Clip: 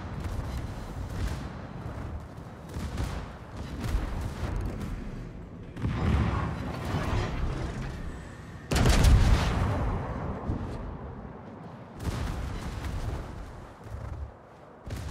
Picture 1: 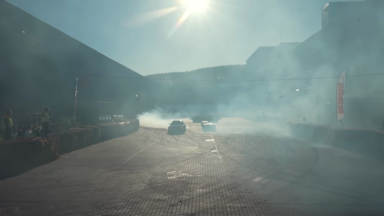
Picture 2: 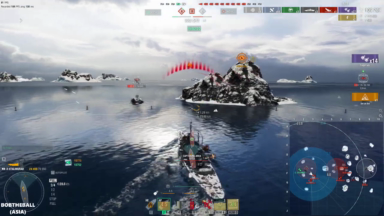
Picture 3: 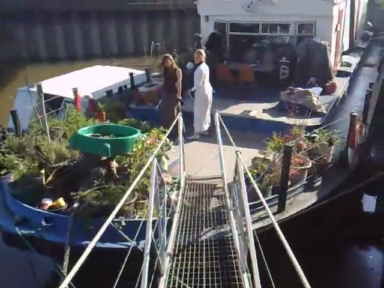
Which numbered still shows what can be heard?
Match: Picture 2